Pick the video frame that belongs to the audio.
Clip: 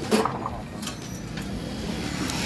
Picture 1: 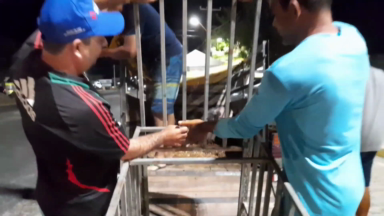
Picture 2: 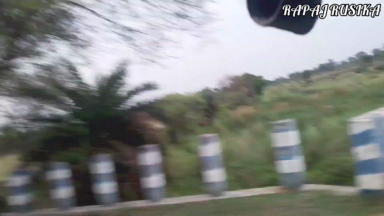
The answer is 1